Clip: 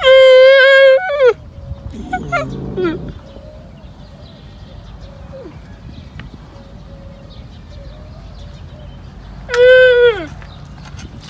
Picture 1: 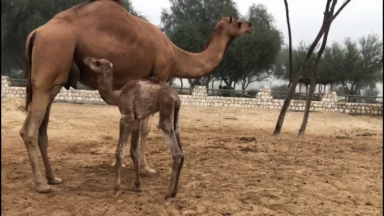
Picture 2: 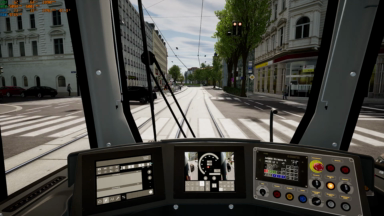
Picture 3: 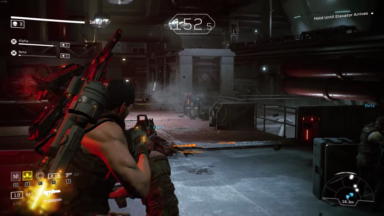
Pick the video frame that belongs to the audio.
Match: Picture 1